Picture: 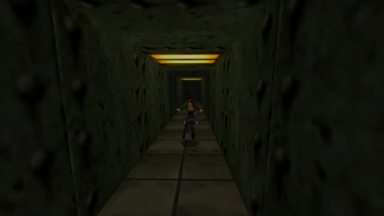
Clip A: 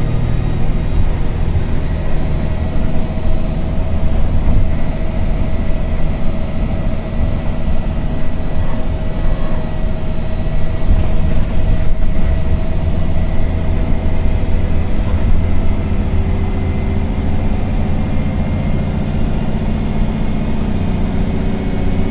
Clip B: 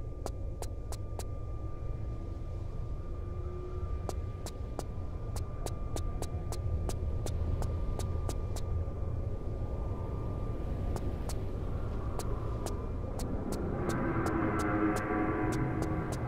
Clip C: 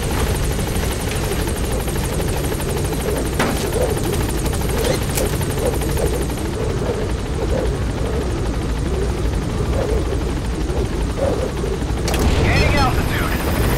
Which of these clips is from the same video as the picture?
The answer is B